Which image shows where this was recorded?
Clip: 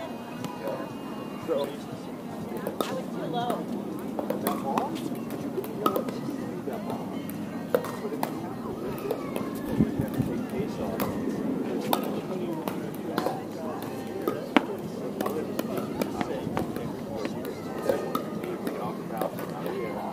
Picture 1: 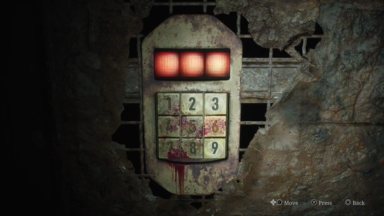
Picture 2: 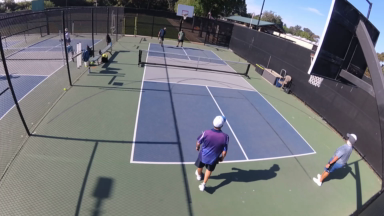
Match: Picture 2